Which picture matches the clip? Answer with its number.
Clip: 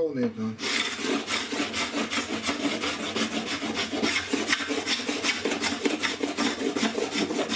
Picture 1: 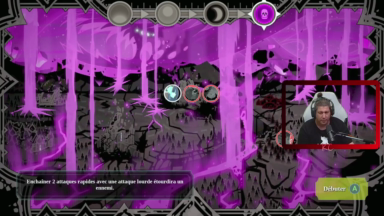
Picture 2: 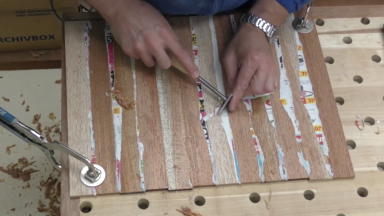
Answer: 2